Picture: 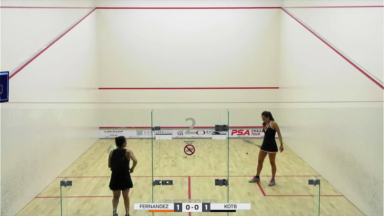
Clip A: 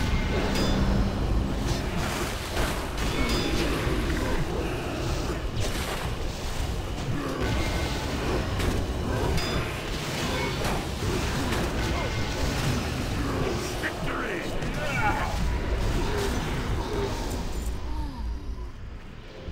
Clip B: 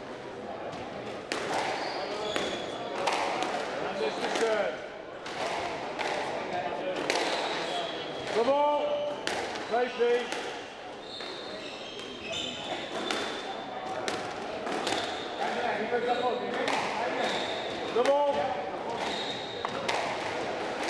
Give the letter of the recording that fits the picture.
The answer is B